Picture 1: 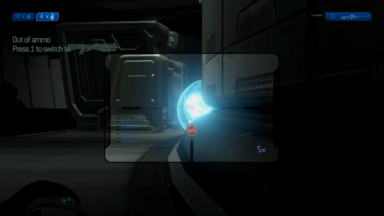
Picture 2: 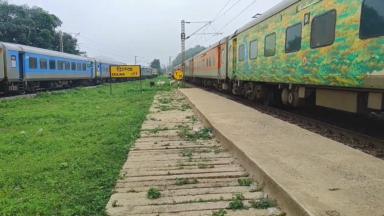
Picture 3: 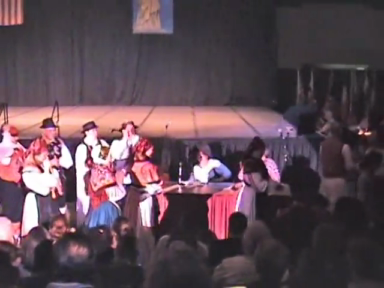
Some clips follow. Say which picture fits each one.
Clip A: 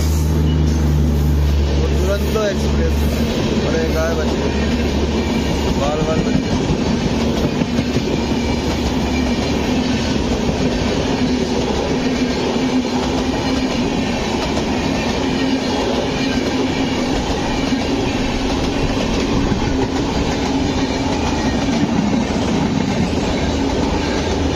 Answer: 2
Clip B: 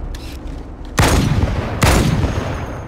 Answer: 1